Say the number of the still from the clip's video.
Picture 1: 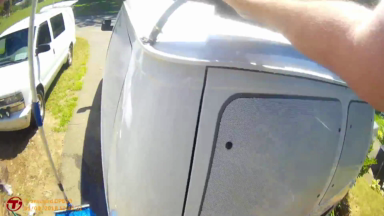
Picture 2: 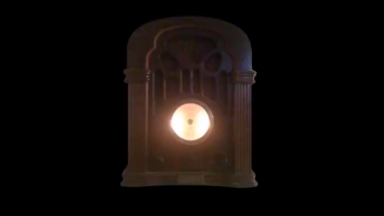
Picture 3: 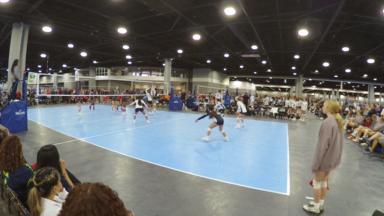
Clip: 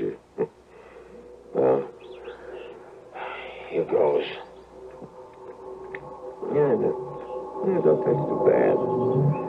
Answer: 2